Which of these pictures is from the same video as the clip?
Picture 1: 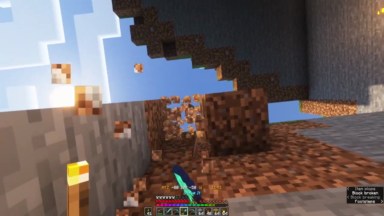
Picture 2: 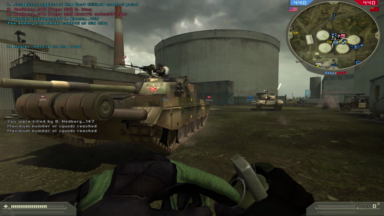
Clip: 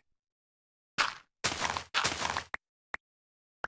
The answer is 1